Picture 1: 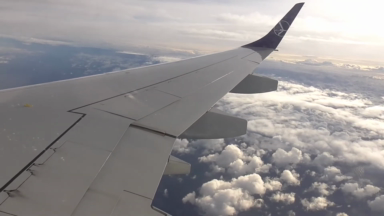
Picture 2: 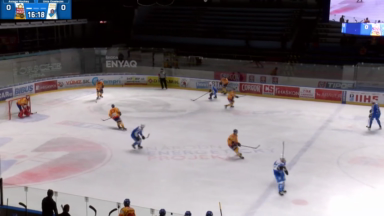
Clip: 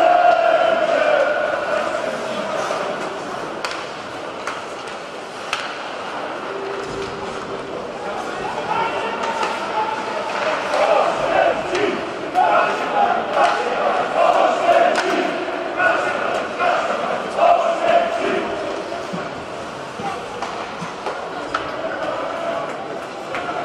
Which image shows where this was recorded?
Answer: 2